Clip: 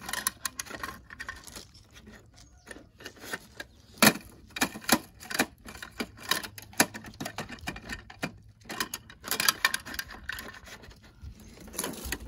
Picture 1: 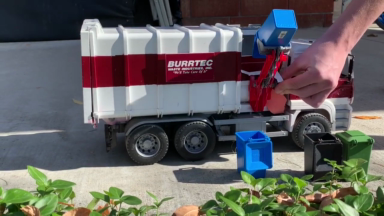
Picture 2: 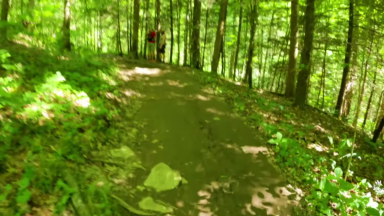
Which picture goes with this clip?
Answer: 1